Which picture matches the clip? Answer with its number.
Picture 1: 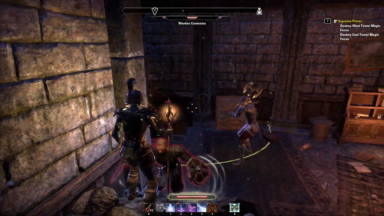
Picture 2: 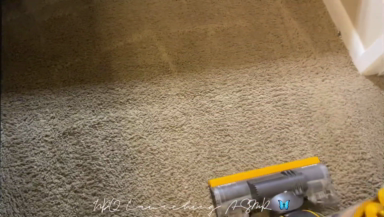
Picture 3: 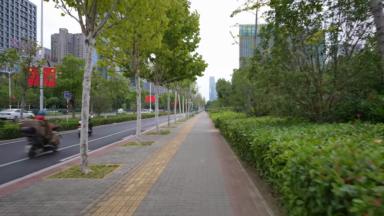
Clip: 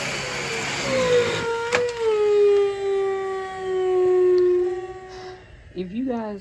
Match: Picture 2